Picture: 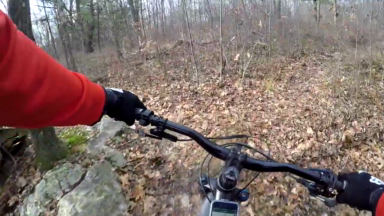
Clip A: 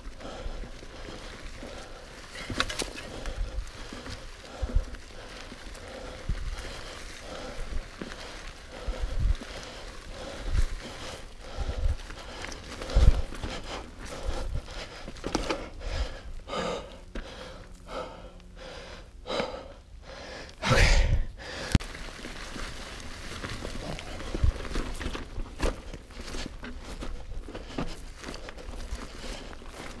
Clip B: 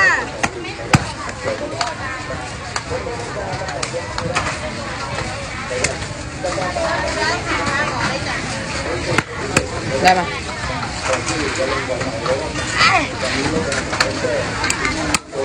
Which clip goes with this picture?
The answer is A